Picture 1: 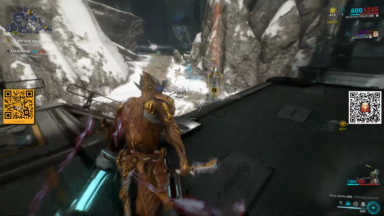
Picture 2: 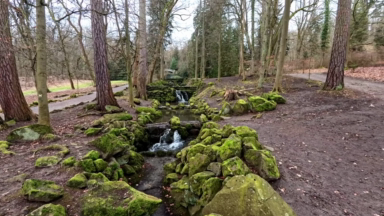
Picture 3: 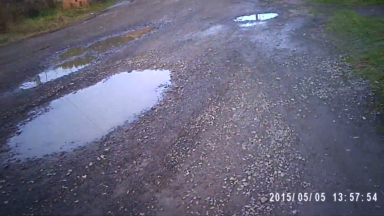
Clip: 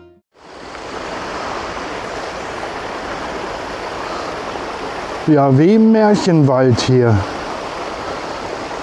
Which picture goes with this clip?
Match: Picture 2